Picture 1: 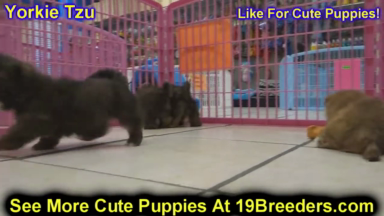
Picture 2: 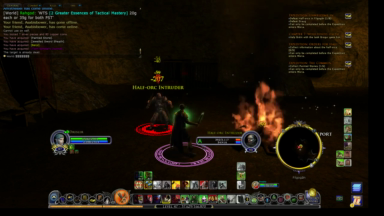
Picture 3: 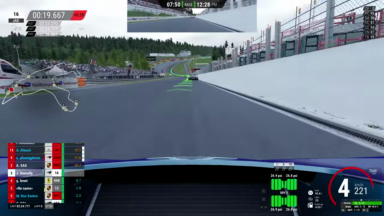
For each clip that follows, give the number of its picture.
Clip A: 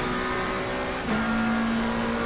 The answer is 3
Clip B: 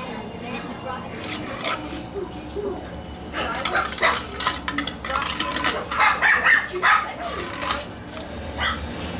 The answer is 1